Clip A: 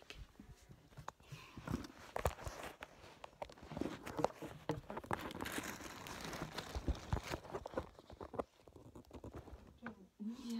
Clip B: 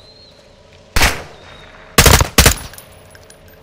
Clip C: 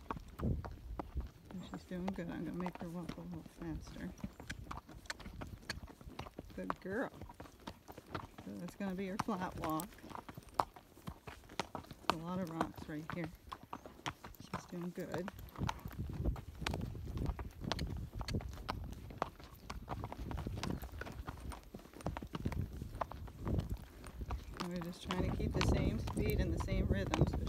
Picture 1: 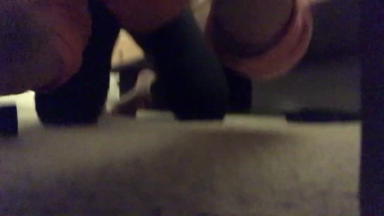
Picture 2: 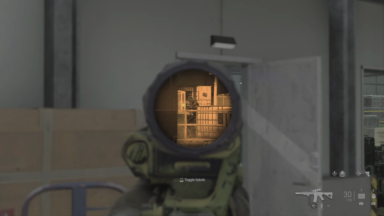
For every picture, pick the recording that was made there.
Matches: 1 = A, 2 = B